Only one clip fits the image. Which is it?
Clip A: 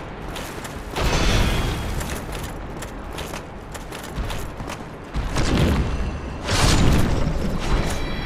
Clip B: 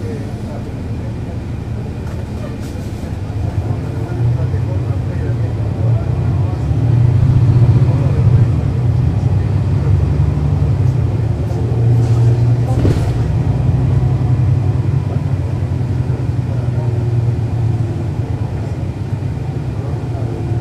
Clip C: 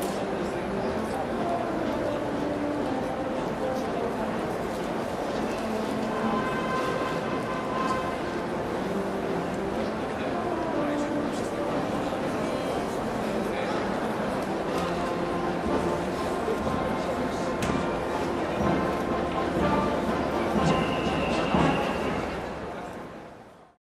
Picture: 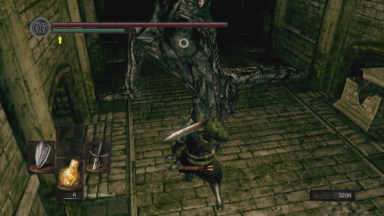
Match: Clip A